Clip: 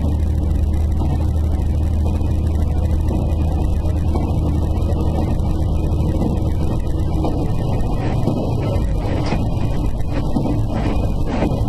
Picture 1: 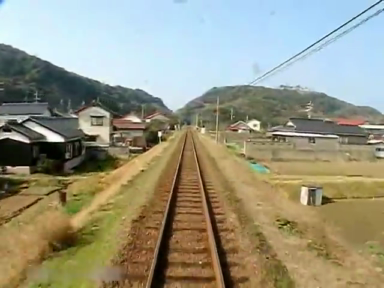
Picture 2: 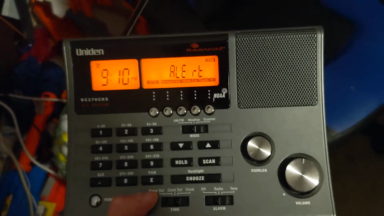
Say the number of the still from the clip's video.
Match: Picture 1